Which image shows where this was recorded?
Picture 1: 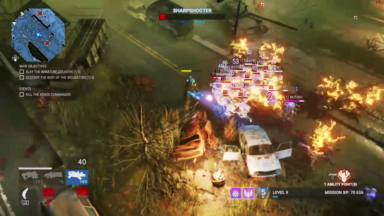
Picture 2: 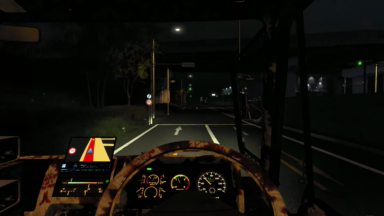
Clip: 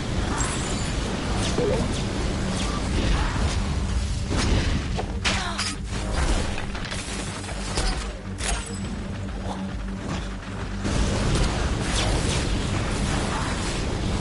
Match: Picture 1